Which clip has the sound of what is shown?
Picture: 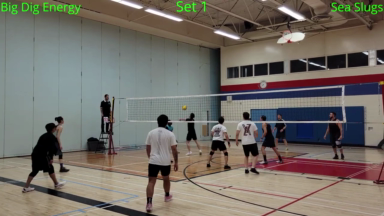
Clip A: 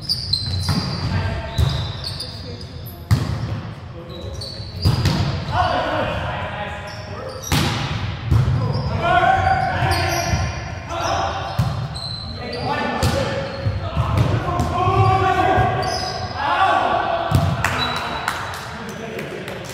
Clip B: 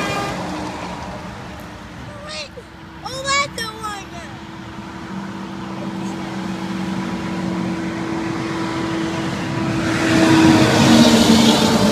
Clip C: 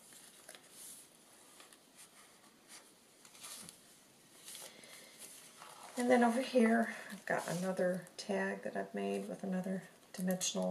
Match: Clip A